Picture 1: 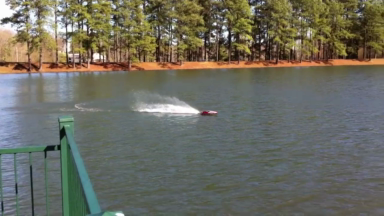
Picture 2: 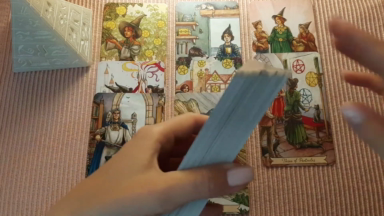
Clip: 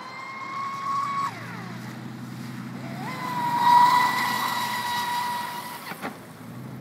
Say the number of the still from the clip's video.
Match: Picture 1